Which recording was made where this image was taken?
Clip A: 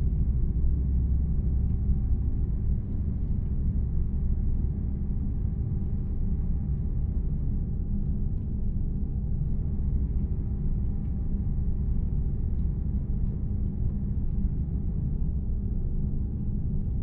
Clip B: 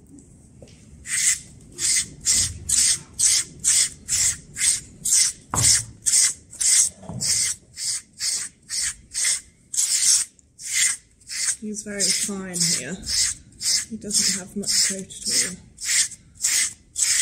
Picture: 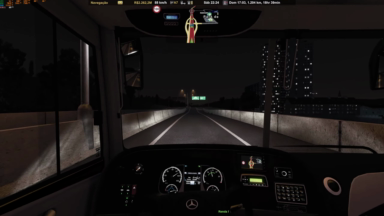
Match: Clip A